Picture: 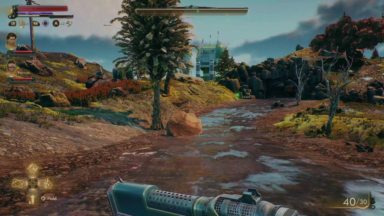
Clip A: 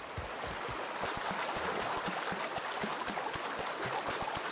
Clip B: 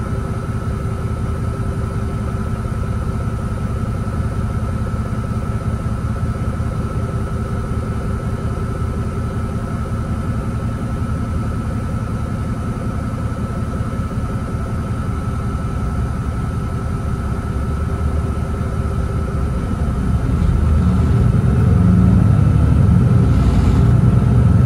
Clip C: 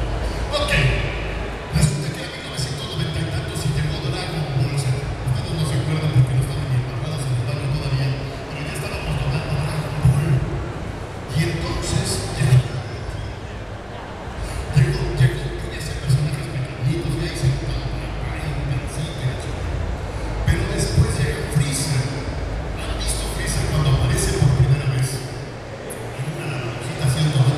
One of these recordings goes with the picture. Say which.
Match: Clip A